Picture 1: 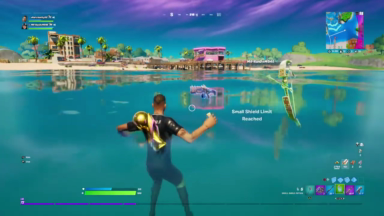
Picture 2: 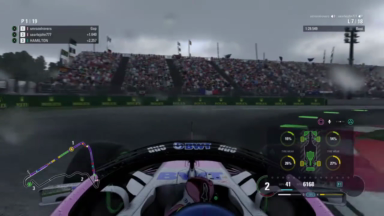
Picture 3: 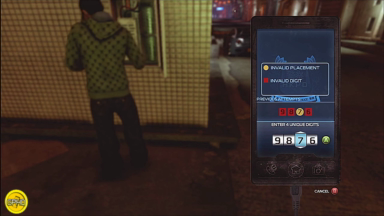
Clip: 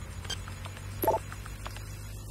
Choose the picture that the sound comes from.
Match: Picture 3